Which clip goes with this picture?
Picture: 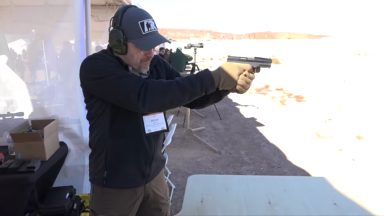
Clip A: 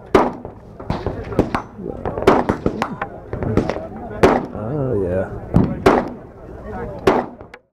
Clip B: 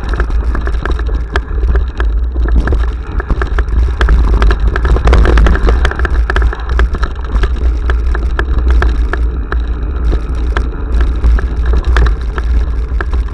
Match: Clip A